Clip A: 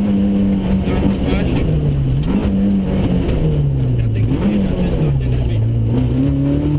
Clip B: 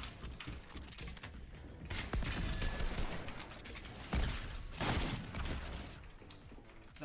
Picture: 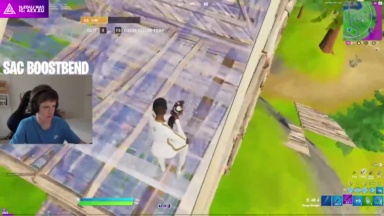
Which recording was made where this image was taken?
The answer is B